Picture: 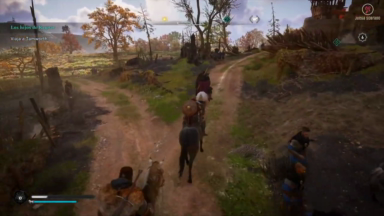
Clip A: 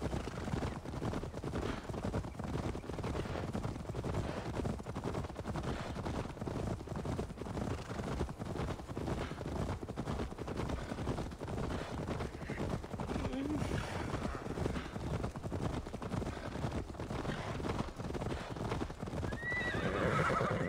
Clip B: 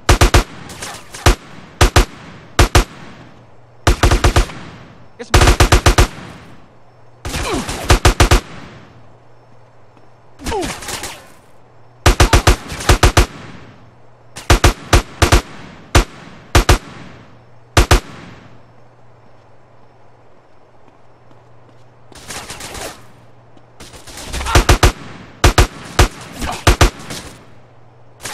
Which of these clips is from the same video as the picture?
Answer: A